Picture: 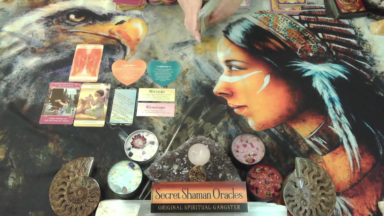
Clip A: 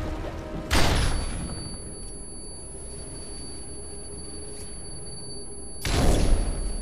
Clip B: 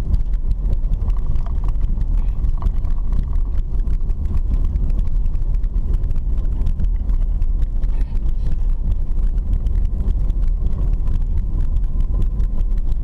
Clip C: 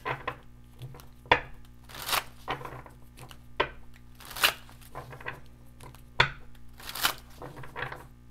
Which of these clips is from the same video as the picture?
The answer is C